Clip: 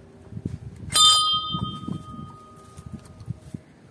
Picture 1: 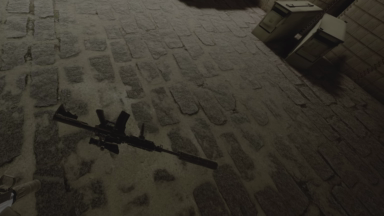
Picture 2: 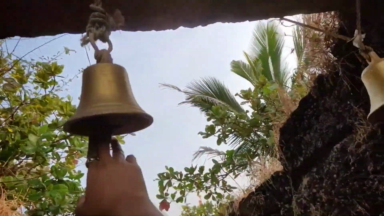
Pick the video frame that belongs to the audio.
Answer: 2